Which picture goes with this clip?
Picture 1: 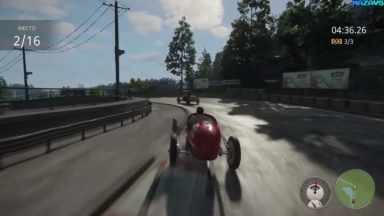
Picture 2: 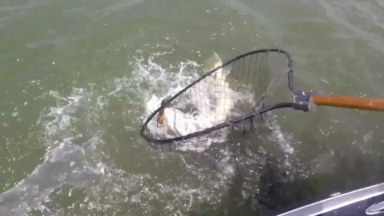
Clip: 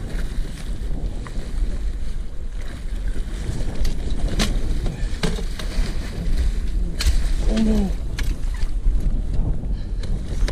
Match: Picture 2